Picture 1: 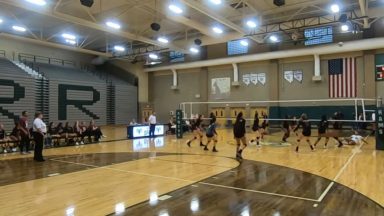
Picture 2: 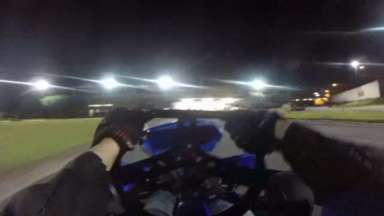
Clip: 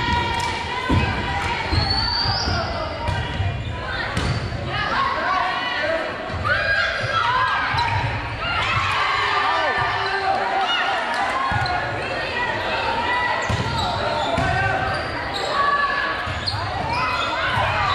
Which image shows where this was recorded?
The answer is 1